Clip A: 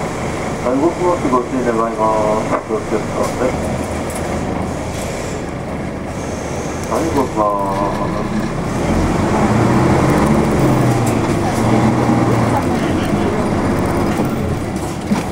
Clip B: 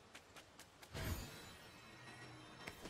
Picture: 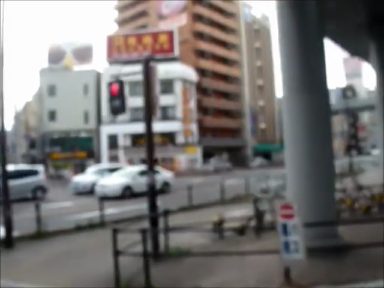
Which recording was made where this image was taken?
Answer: A